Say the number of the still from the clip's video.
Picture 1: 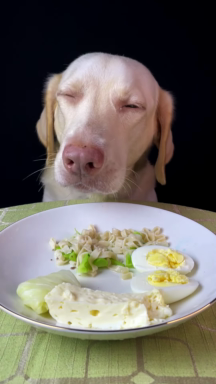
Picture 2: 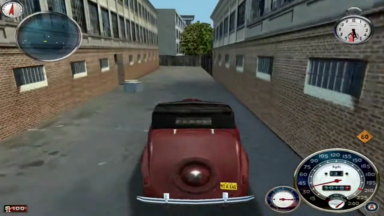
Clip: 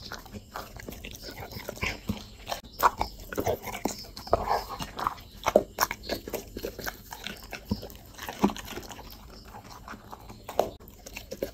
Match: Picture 1